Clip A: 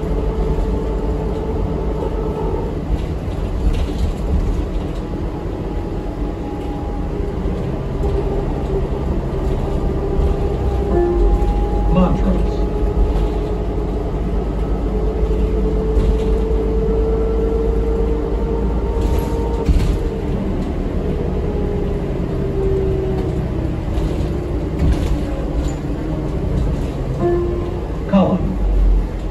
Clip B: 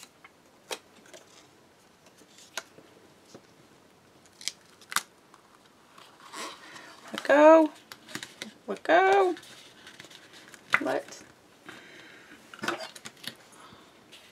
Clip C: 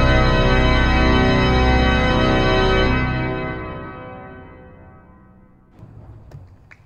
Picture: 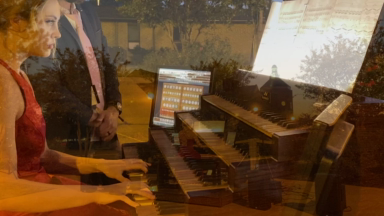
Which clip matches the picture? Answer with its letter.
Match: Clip C